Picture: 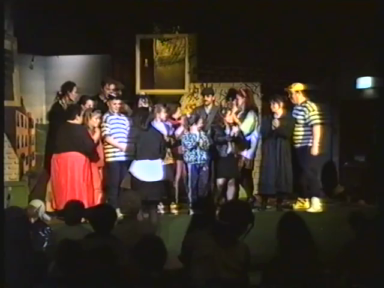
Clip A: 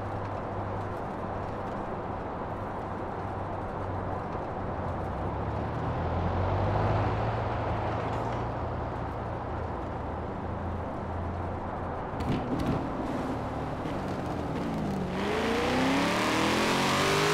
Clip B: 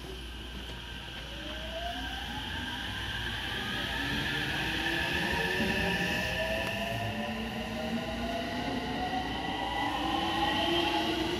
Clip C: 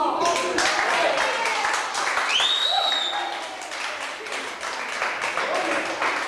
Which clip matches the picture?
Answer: C